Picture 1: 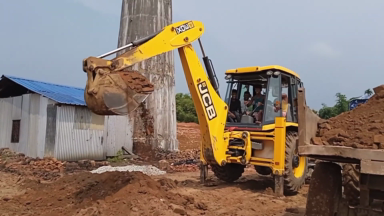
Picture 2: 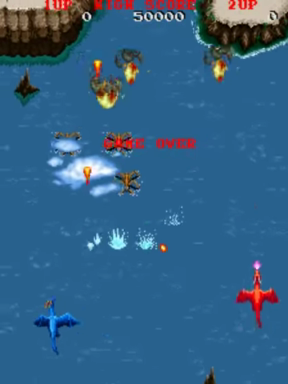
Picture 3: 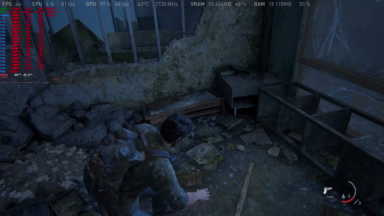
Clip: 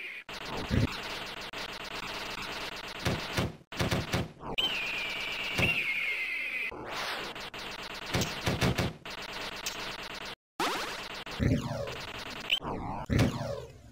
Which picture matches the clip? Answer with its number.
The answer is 2